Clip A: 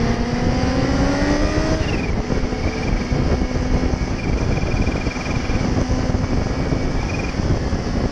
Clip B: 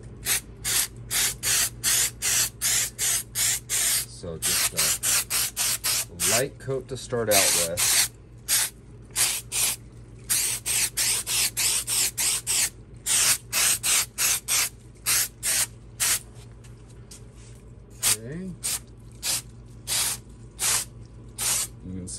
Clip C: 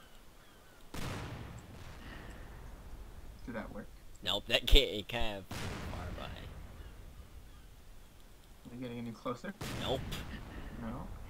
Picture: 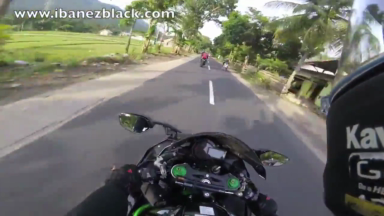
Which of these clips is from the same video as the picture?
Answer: A